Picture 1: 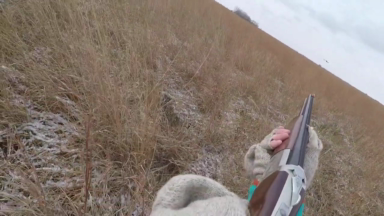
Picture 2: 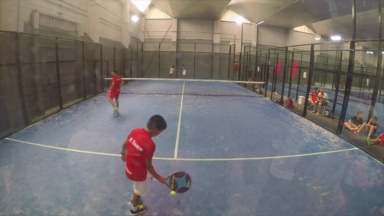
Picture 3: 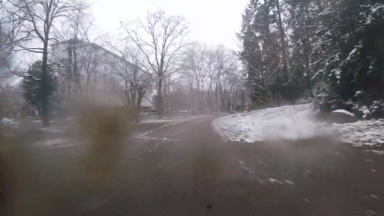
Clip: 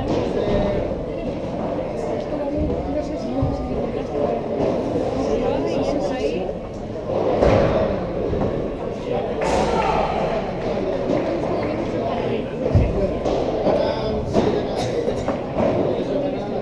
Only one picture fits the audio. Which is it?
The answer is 2